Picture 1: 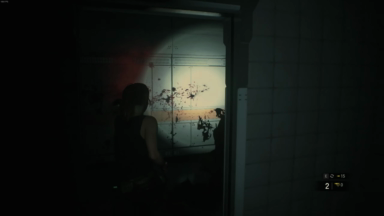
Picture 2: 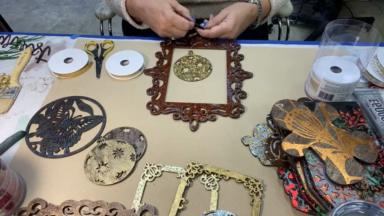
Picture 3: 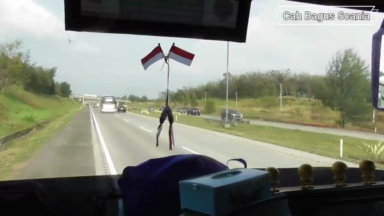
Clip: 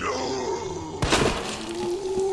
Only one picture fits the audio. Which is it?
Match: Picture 1